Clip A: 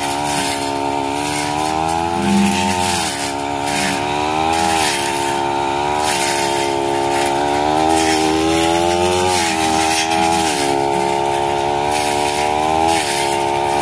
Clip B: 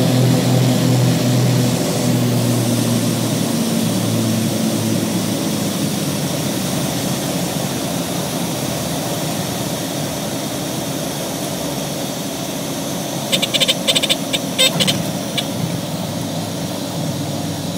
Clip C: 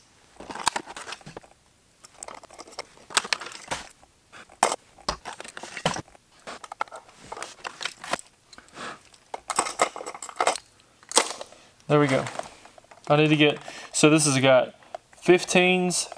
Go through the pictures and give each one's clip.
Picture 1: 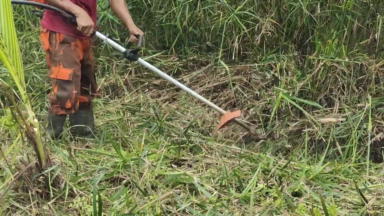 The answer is A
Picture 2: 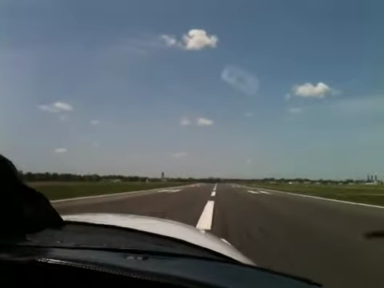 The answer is B